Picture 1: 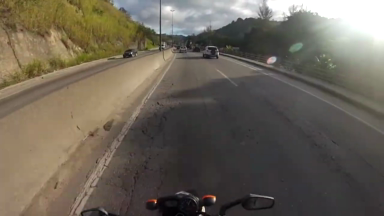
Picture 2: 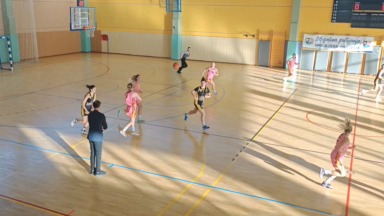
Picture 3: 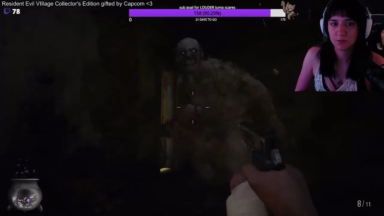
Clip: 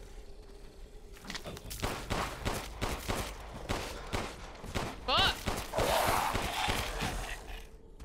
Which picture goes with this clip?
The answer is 3